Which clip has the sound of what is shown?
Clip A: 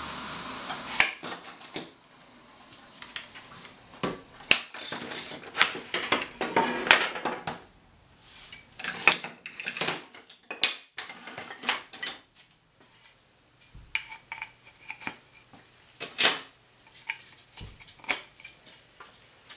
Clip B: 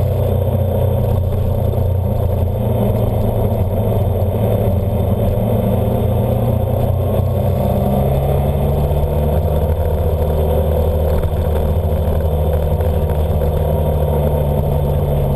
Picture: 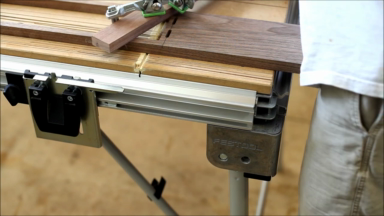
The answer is A